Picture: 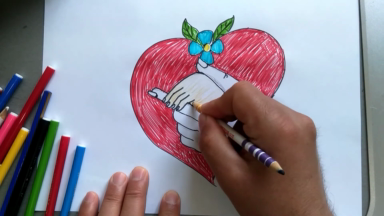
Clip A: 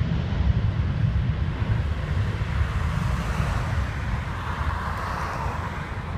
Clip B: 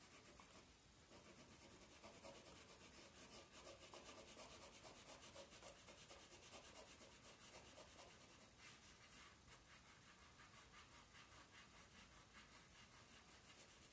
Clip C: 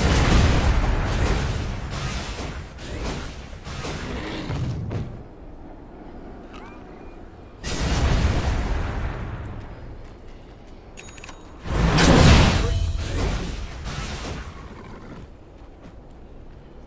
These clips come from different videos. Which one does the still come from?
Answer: B